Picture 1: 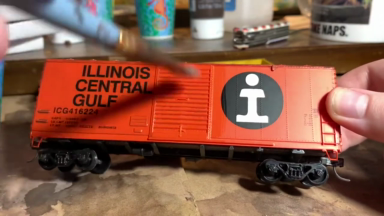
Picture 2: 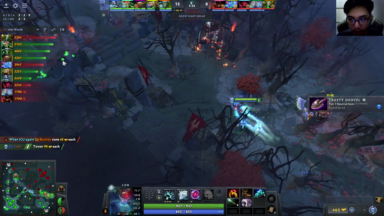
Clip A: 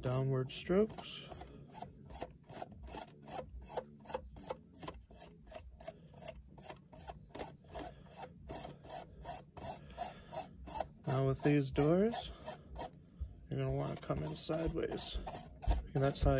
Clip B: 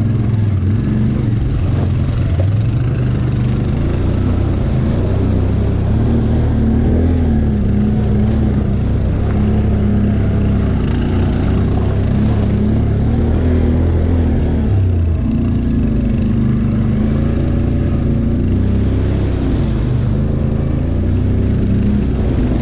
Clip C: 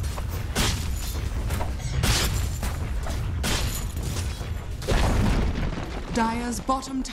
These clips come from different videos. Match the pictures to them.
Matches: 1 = A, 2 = C